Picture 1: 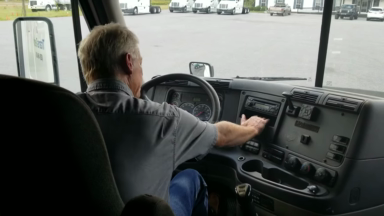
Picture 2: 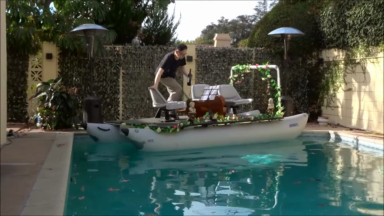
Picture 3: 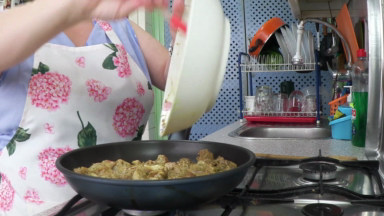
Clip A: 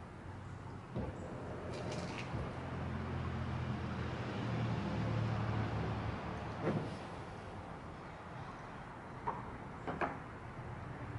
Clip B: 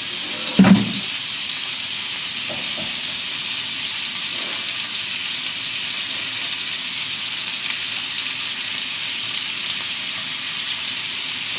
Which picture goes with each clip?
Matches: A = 2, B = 3